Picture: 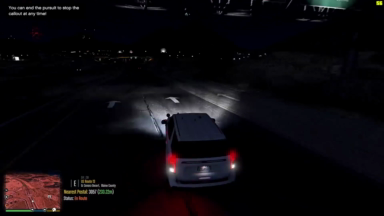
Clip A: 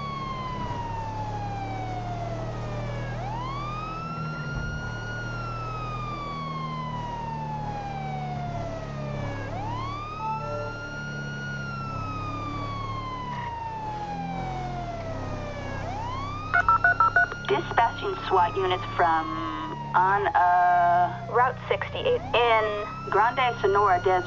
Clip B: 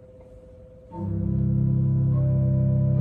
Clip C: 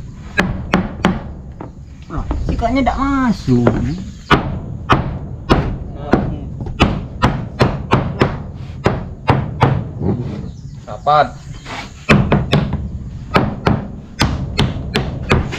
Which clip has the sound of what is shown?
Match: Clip A